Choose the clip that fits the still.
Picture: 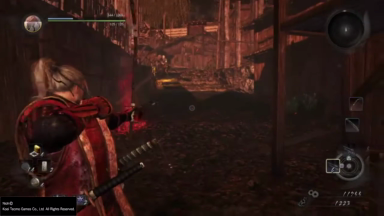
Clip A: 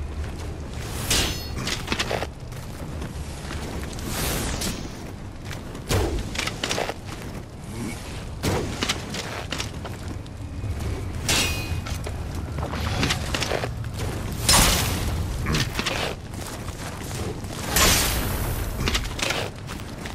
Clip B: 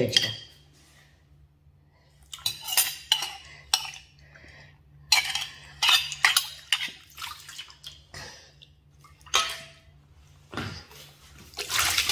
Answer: A